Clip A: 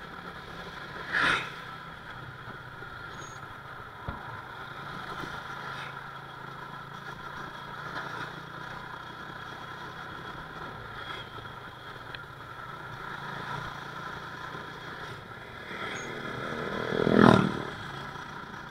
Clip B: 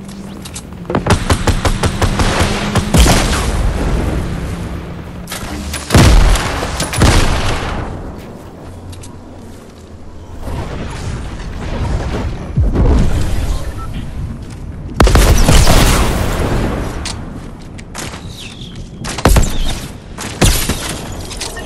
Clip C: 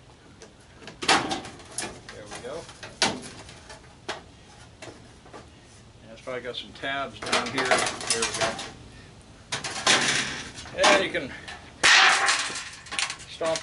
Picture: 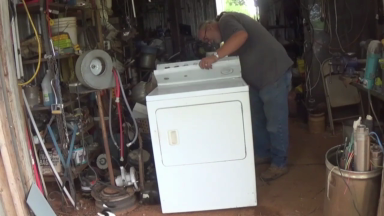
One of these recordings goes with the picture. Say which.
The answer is C